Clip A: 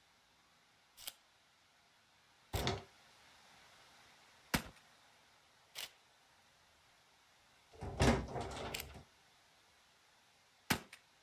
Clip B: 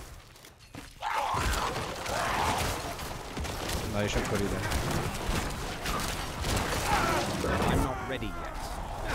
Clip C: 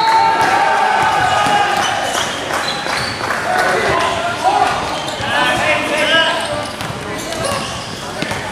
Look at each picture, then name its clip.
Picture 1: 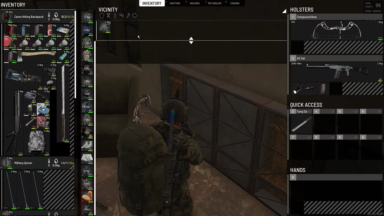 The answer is A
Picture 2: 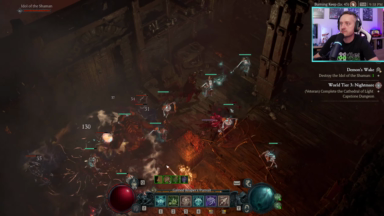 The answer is B